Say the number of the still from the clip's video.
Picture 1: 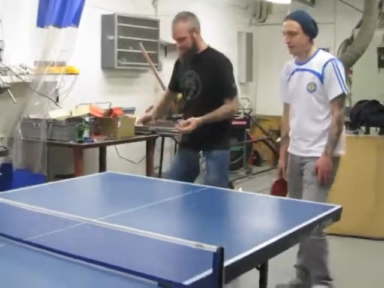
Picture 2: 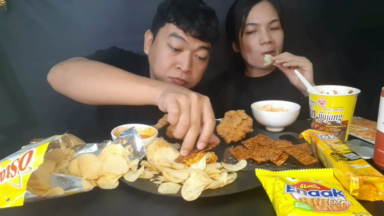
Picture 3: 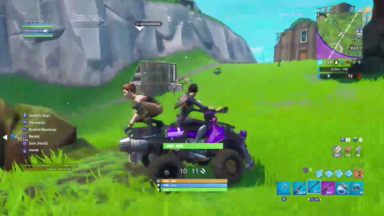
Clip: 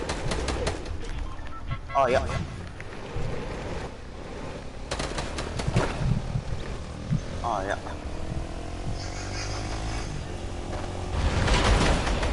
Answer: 3